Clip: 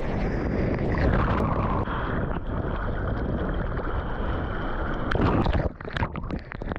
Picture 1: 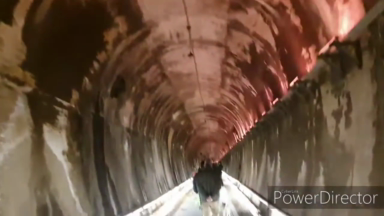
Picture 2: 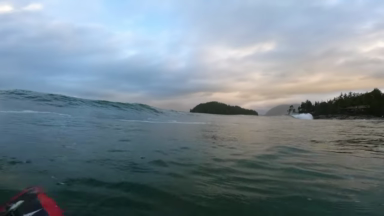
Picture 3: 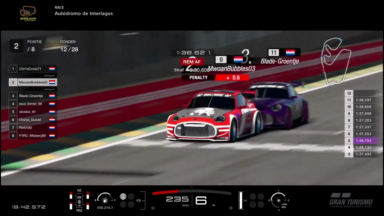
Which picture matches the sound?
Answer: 2